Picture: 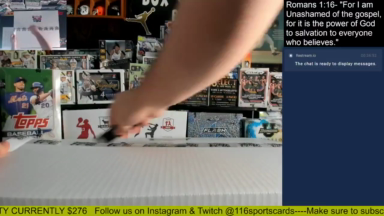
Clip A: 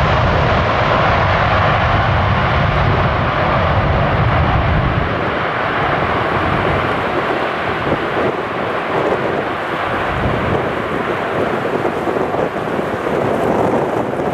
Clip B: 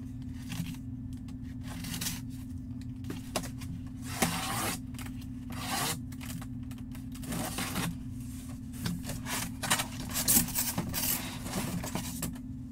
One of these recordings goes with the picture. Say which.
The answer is B